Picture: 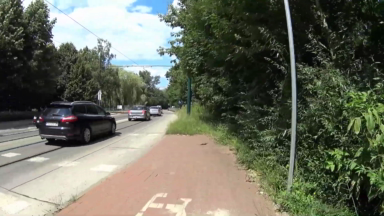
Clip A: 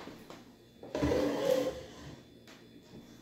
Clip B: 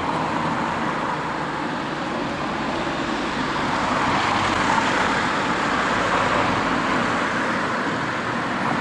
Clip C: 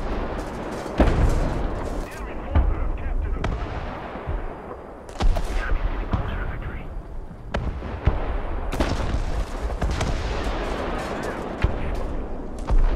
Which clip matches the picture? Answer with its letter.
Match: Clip B